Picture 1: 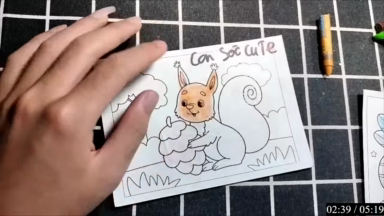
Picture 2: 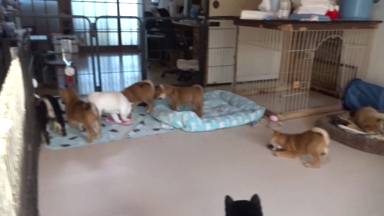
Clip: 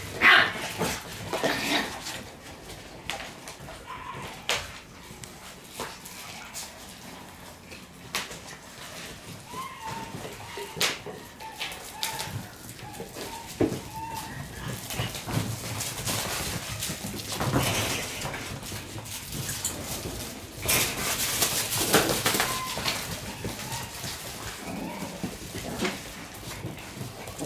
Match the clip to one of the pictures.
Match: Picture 2